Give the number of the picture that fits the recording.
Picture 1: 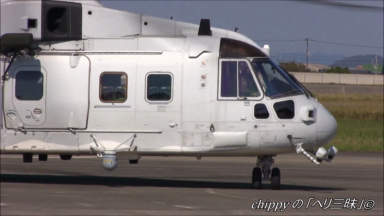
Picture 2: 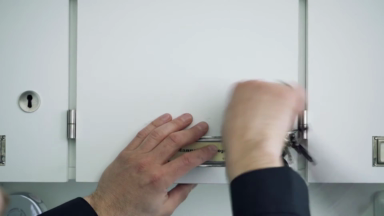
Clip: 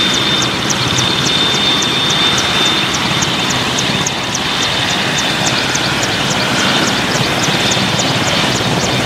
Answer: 1